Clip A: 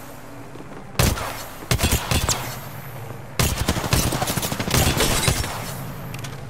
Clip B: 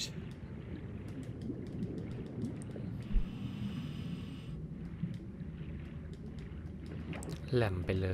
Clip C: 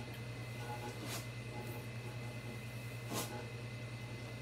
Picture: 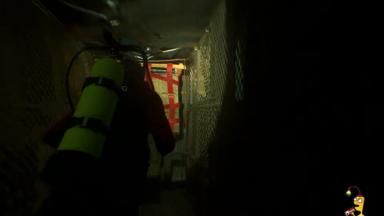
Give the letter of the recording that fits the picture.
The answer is B